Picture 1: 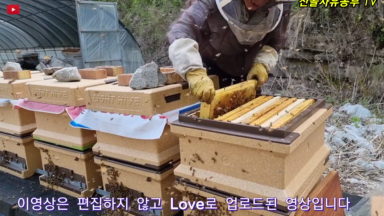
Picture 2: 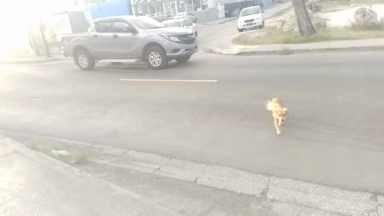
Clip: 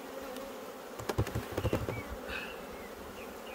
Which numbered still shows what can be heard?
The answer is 1